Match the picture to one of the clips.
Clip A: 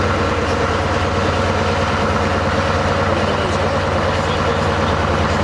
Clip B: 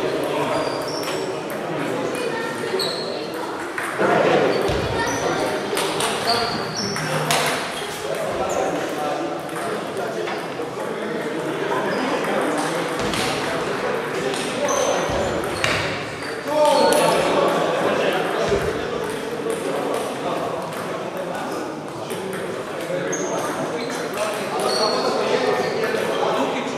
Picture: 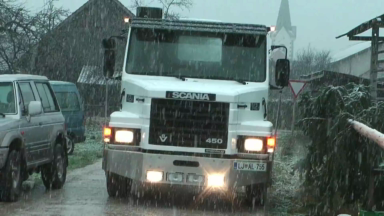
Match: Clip A